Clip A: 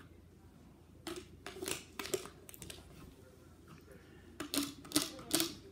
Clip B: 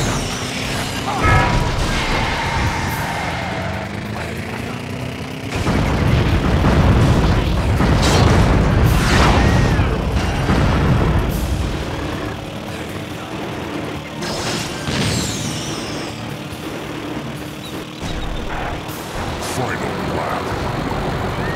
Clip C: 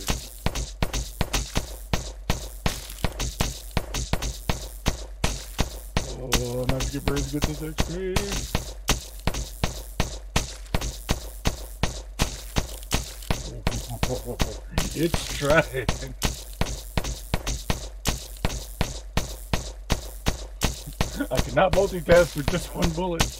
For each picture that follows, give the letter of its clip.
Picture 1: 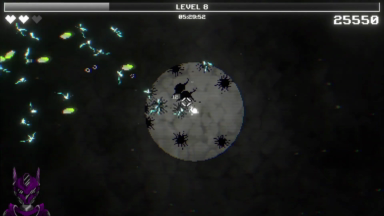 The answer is C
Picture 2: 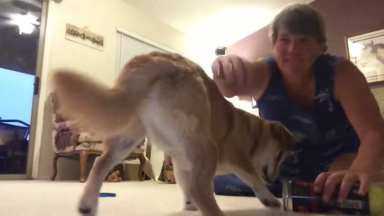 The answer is A